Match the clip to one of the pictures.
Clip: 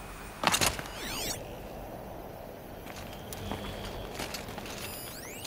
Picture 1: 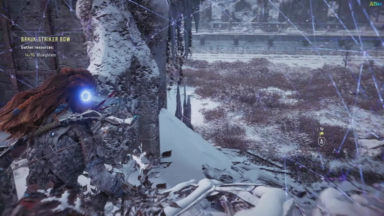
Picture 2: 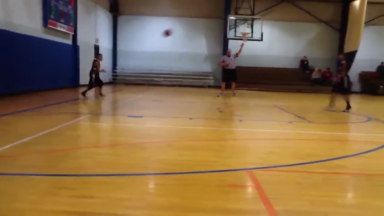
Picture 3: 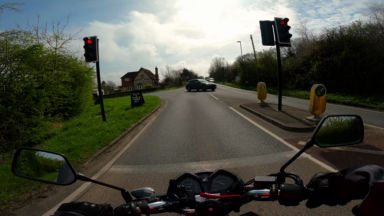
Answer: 1